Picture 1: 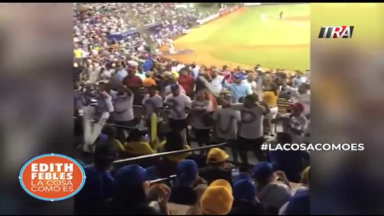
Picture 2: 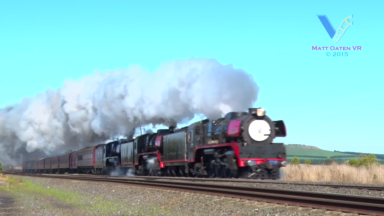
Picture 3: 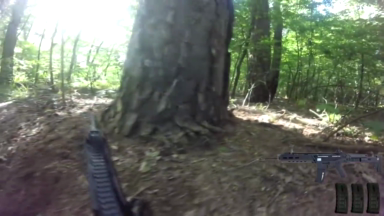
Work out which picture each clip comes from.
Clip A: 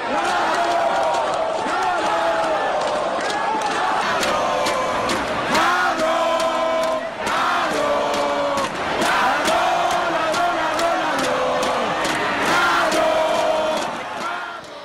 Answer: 1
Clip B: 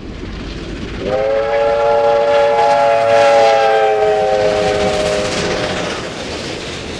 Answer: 2